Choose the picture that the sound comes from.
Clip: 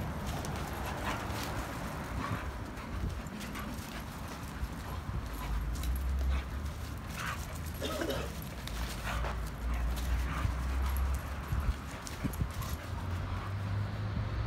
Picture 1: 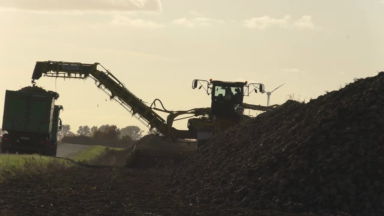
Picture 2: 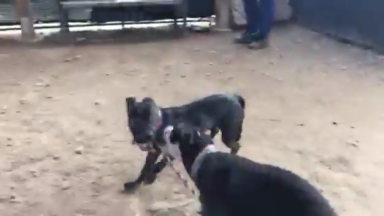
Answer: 2